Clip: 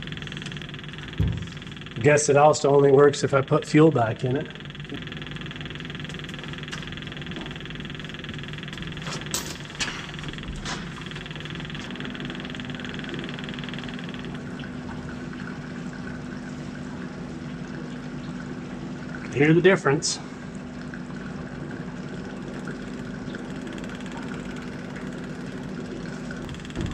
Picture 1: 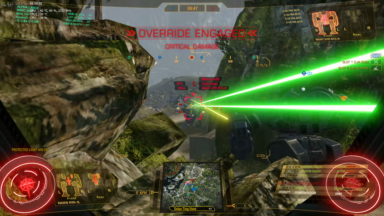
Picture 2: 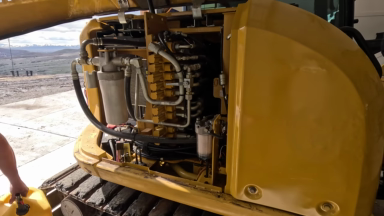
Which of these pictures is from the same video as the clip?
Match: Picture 2